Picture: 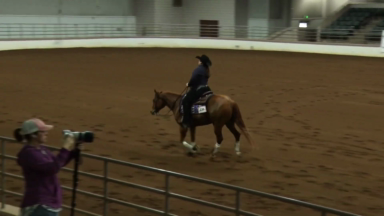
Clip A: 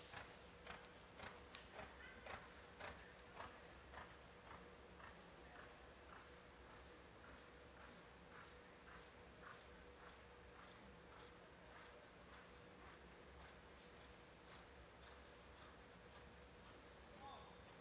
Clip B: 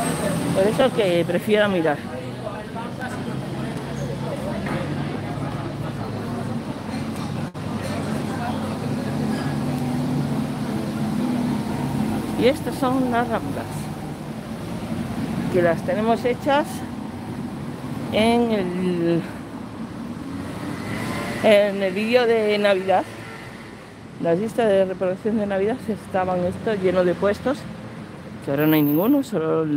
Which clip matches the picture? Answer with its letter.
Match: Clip A